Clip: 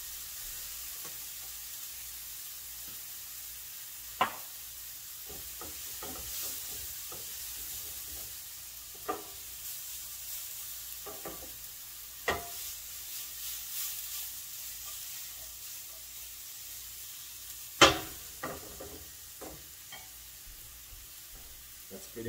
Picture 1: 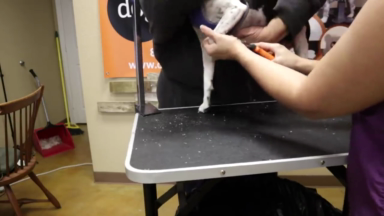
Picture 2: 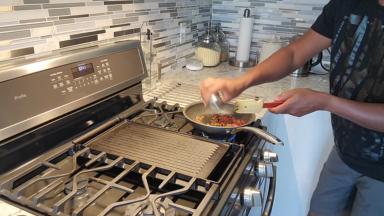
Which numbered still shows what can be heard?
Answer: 2